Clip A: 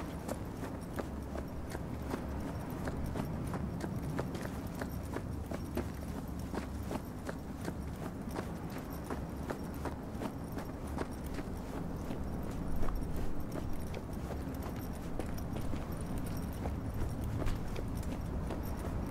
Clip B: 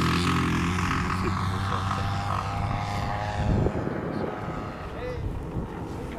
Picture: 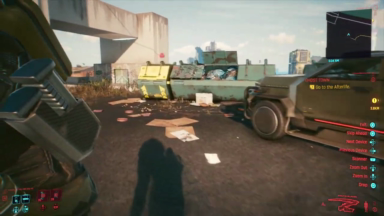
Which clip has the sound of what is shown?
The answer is A